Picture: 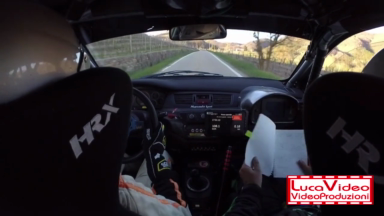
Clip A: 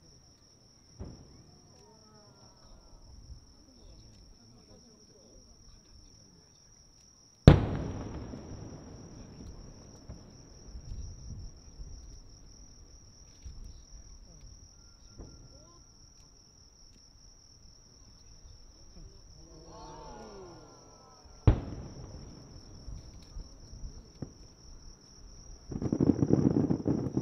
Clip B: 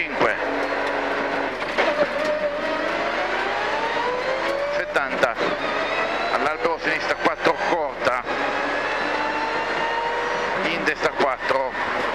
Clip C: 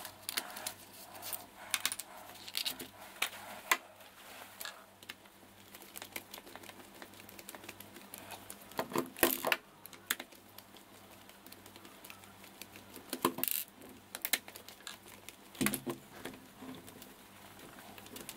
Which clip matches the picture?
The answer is B